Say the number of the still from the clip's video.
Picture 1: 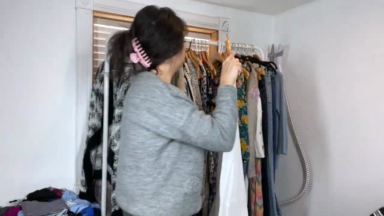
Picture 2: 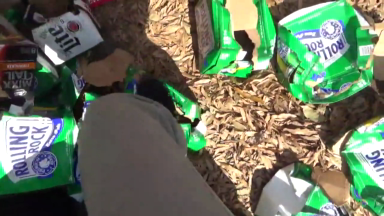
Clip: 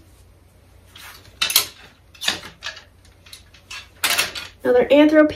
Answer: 1